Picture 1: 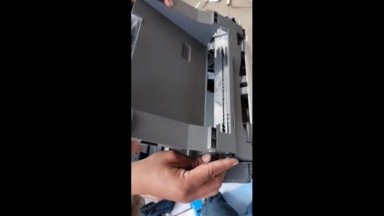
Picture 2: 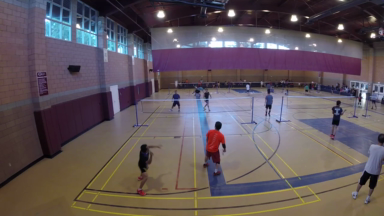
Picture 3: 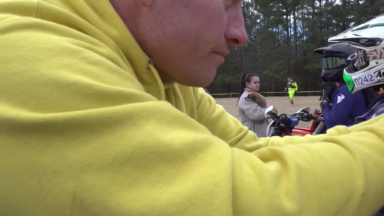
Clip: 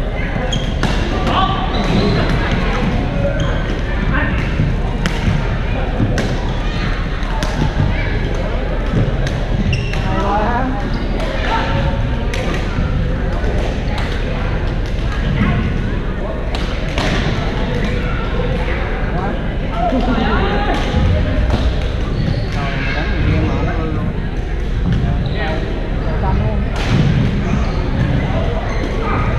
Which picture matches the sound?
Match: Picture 2